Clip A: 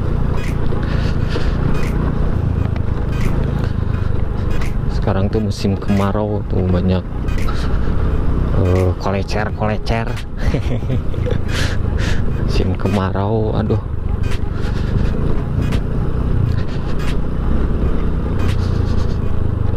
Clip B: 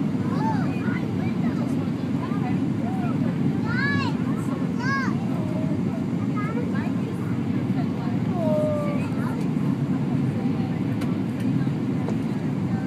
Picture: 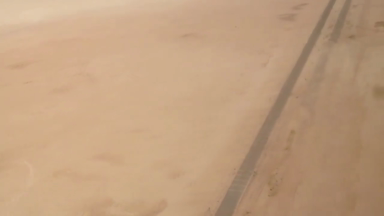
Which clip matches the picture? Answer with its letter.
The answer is B